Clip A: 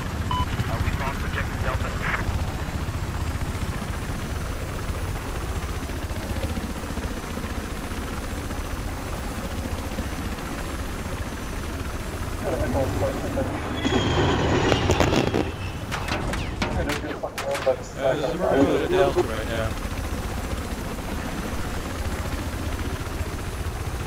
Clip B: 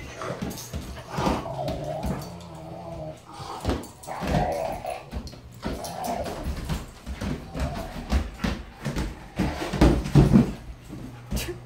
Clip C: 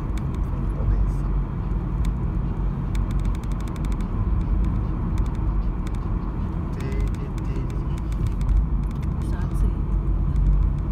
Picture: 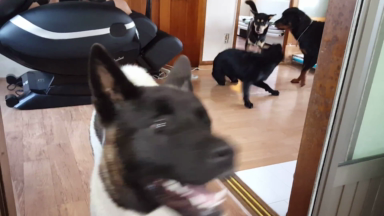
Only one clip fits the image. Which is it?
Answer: B